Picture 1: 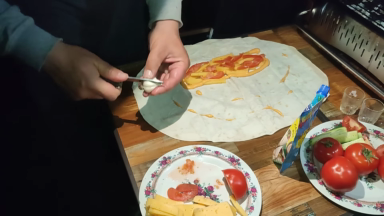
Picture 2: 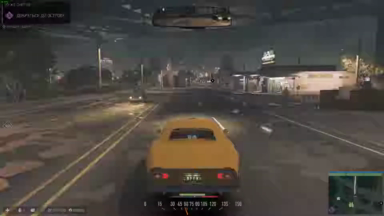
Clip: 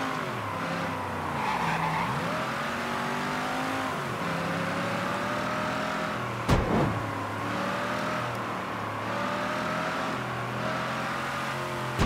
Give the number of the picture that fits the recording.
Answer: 2